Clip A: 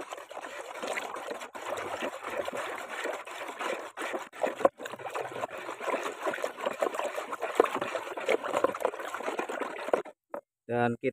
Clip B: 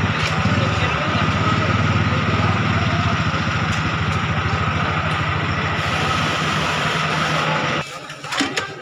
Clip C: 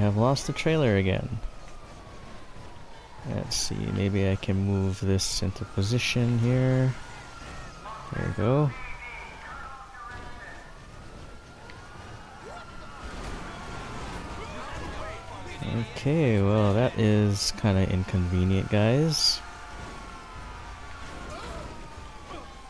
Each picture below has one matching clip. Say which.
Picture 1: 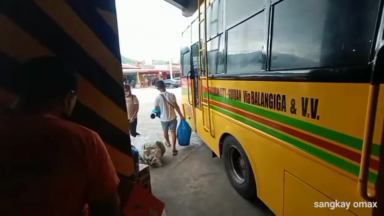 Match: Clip B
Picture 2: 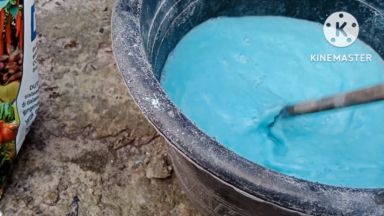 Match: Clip A